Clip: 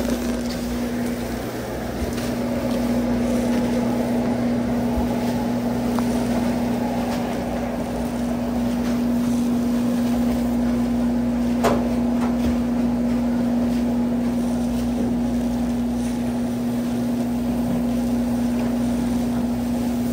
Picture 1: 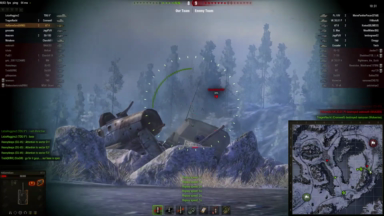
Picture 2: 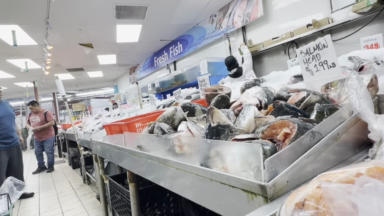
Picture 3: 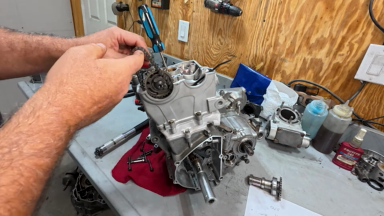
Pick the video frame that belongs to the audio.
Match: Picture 2